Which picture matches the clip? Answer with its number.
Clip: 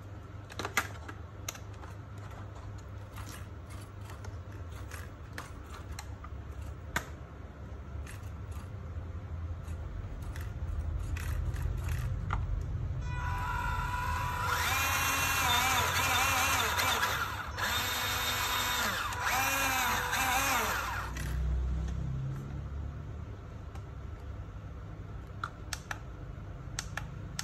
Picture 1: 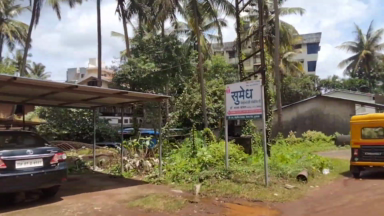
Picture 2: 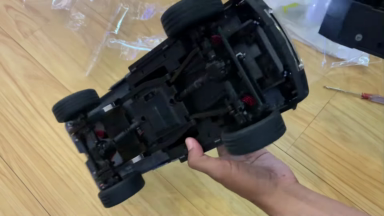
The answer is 2